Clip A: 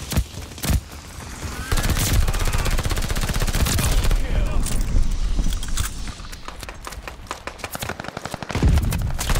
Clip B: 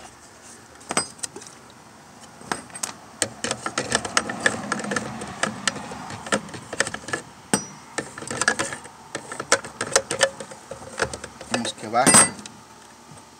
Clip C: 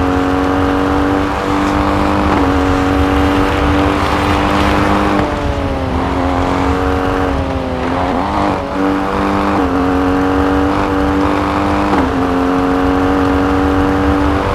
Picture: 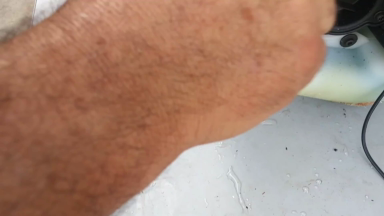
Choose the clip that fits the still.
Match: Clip B